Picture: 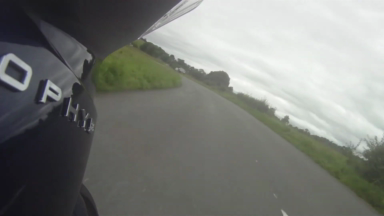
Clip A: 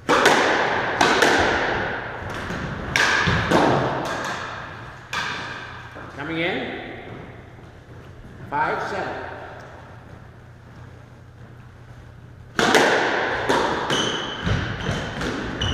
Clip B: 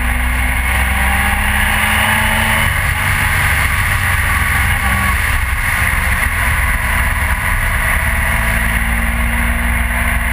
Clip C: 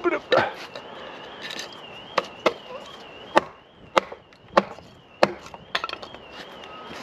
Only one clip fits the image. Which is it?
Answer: B